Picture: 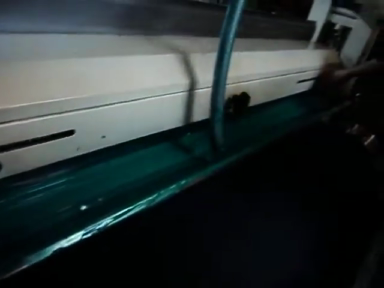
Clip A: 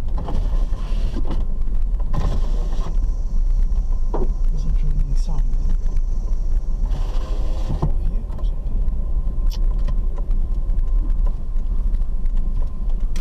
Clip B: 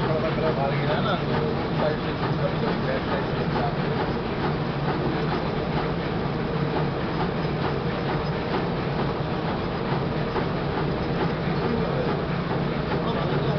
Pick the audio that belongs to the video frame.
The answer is B